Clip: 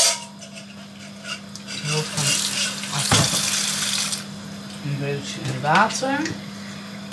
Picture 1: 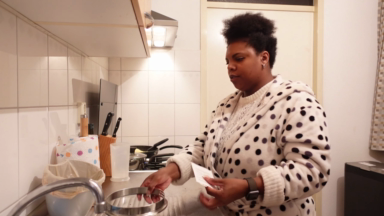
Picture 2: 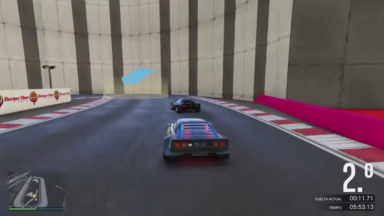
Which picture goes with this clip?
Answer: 1